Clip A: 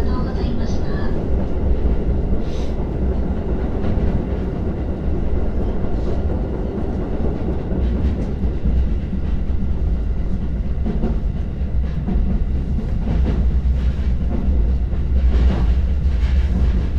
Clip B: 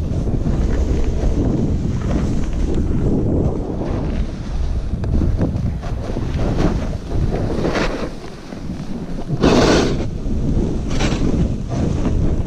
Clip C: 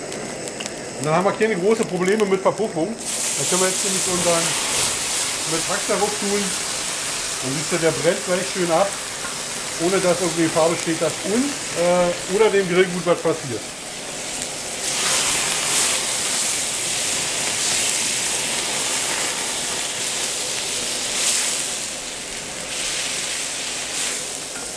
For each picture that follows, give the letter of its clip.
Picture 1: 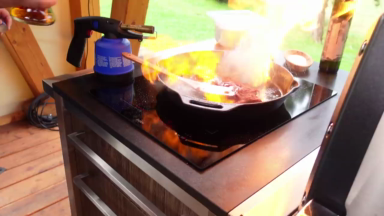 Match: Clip C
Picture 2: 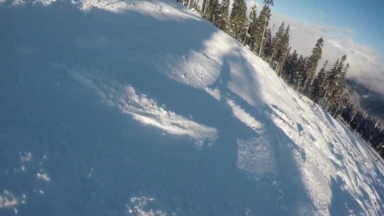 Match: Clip B